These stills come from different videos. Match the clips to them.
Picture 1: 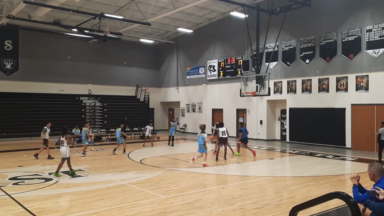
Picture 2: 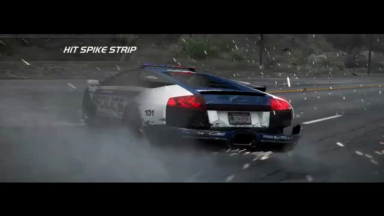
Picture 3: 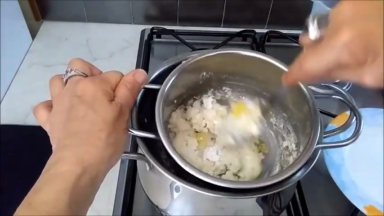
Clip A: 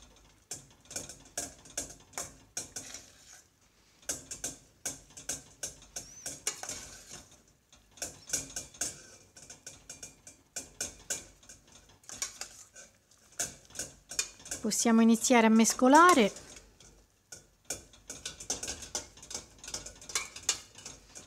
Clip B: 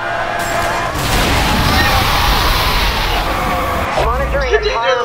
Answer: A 3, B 2